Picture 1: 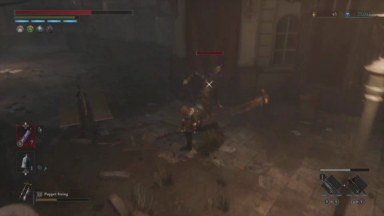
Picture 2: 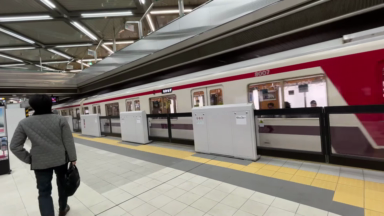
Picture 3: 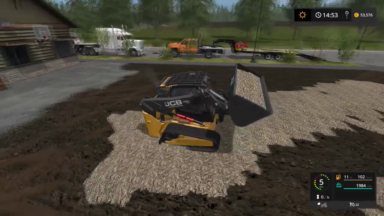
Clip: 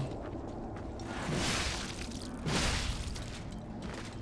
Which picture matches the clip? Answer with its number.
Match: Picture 1